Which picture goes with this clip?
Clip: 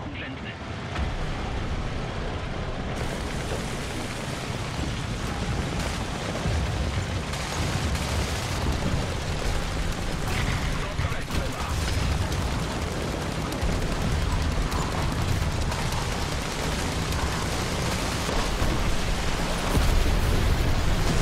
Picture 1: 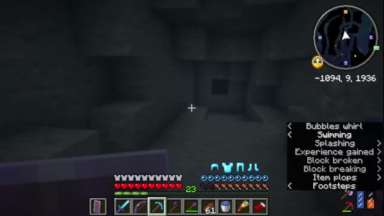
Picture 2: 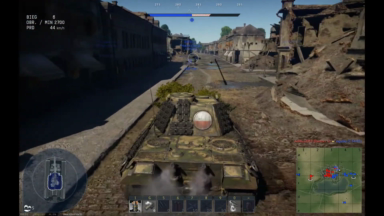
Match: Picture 2